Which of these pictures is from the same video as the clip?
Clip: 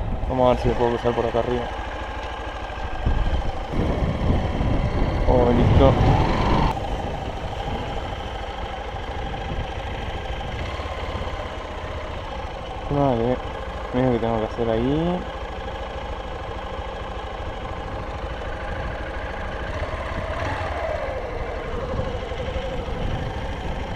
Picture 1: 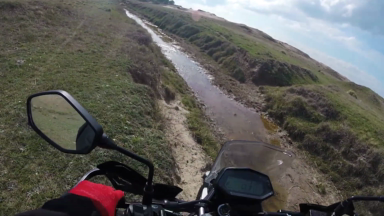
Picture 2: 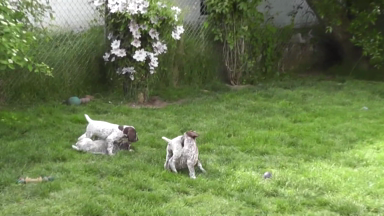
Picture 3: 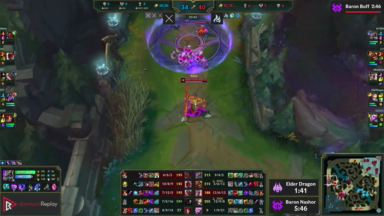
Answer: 1